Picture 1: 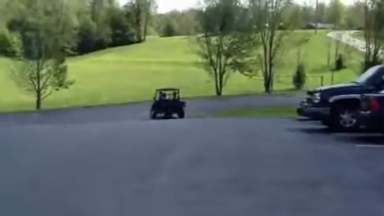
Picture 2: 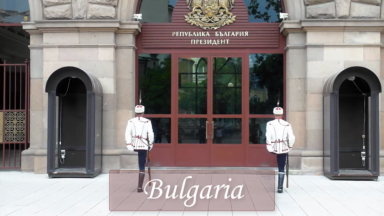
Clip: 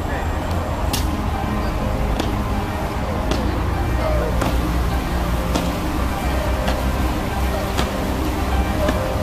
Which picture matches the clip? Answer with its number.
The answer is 2